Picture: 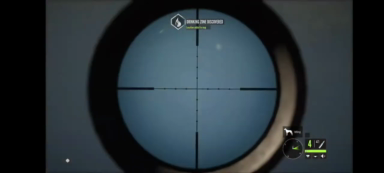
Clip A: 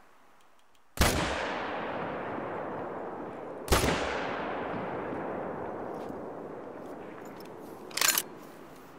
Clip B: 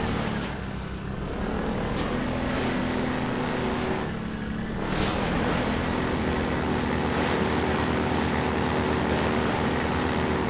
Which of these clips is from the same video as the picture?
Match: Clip A